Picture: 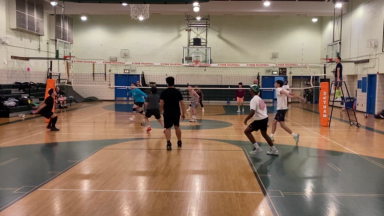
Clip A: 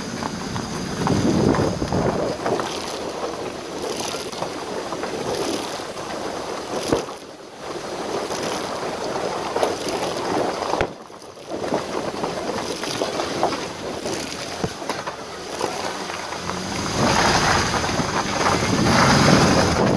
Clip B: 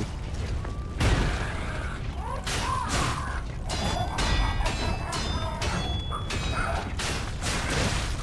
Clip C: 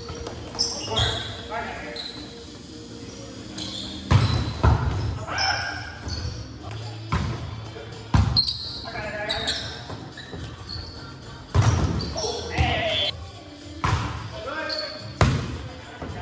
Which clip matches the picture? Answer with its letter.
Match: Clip C